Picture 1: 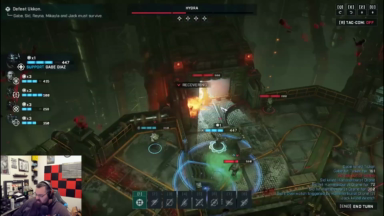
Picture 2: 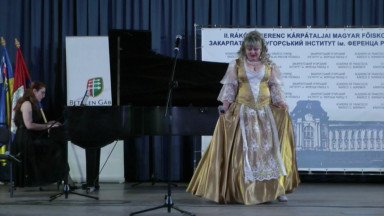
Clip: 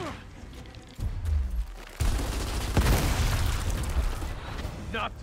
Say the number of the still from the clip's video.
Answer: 1